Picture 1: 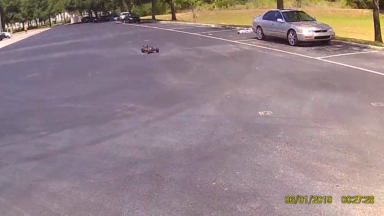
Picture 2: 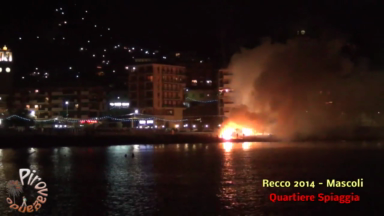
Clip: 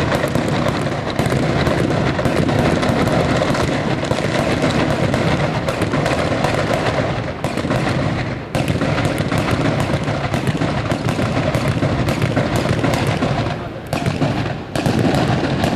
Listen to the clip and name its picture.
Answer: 2